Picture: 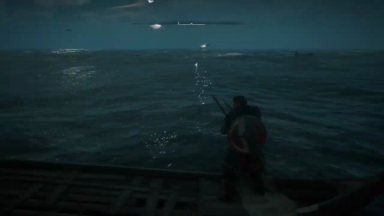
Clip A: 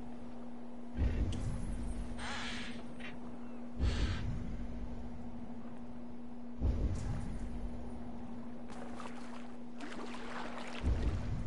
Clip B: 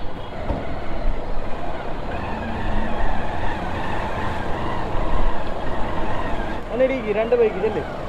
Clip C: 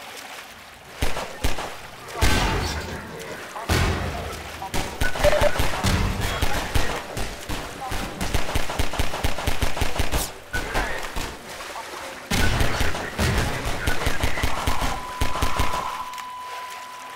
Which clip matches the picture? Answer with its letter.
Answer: A